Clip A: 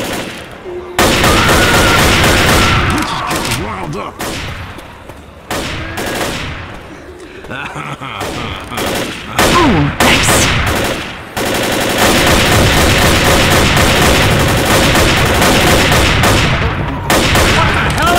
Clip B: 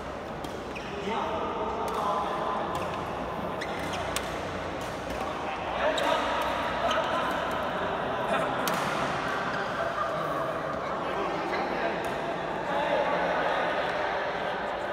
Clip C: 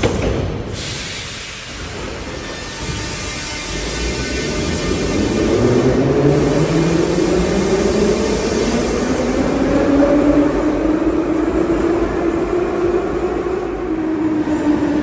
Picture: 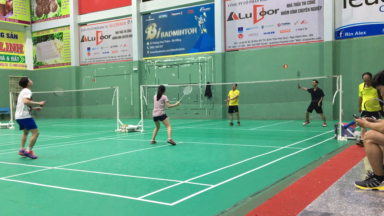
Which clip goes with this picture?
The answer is B